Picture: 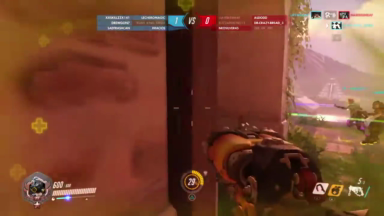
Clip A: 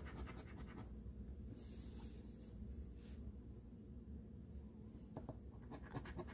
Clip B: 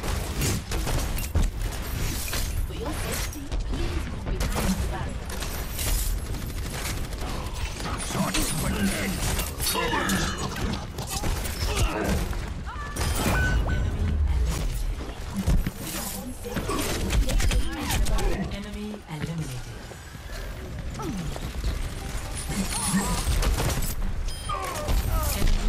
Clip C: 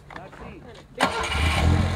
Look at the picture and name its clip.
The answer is B